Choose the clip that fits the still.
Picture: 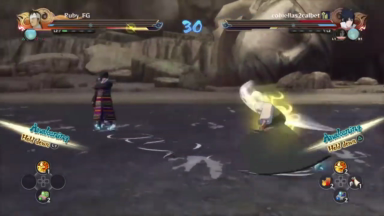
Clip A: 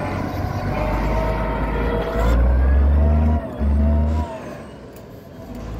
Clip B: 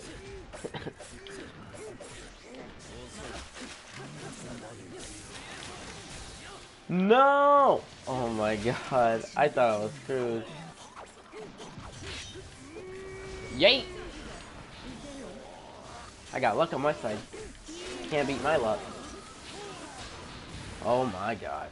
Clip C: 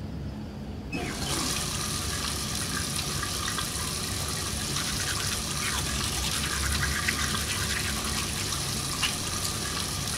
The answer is B